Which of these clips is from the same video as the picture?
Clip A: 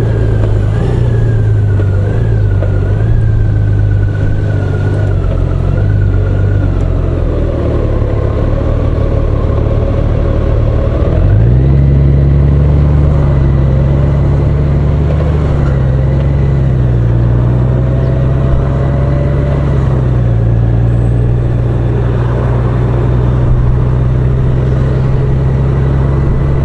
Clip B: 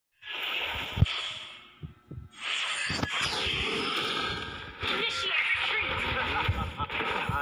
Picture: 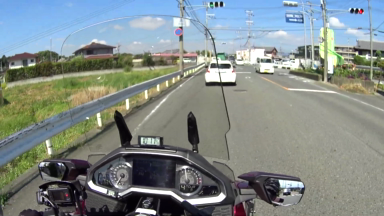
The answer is A